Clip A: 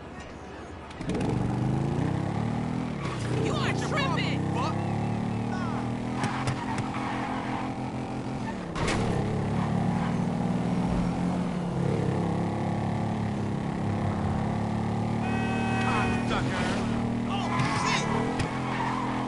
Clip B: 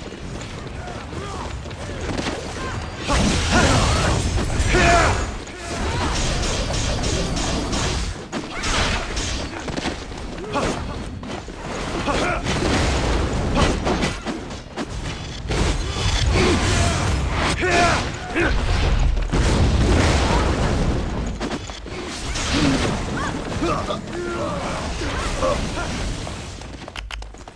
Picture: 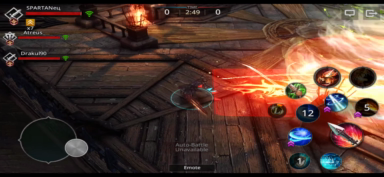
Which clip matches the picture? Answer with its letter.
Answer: B